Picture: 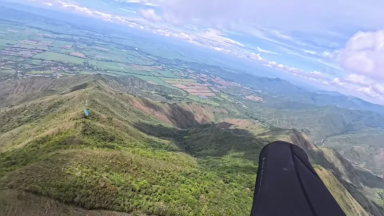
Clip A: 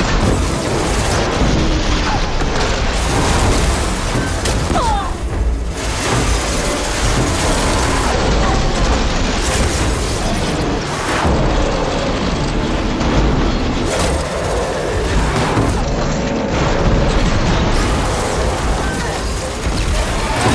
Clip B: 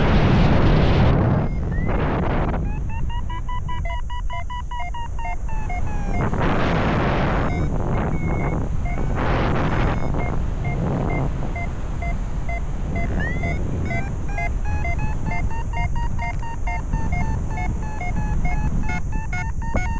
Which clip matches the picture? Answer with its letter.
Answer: B